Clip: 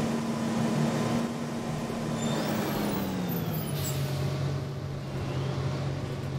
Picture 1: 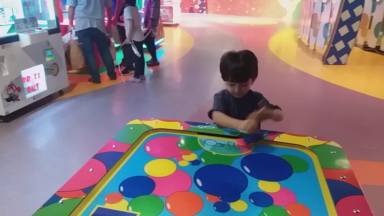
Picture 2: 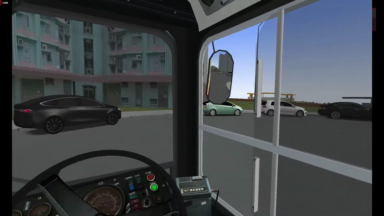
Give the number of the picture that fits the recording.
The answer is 2